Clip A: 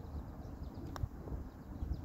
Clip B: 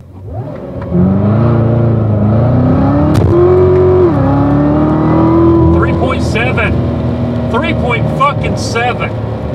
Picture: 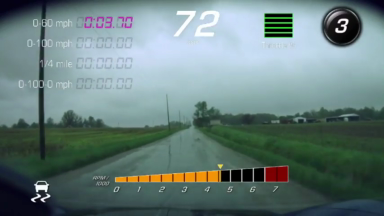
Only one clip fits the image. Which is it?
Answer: B